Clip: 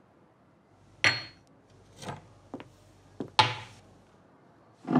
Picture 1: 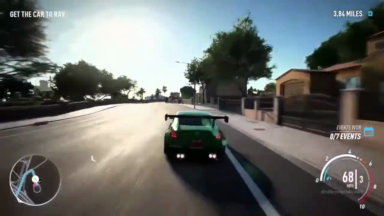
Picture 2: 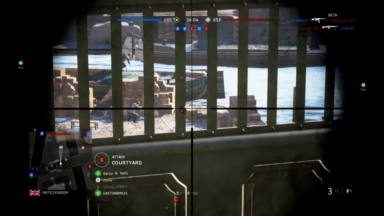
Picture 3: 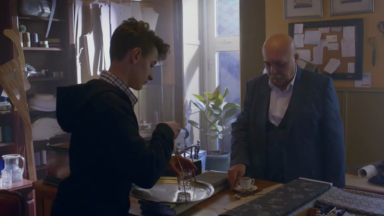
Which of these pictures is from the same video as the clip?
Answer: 3